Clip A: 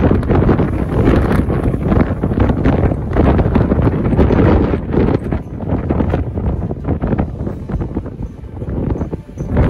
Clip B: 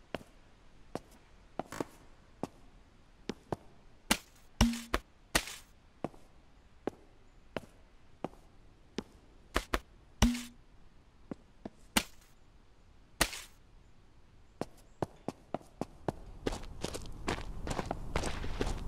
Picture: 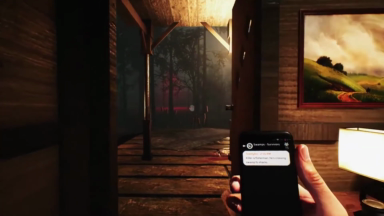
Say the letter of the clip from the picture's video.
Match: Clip B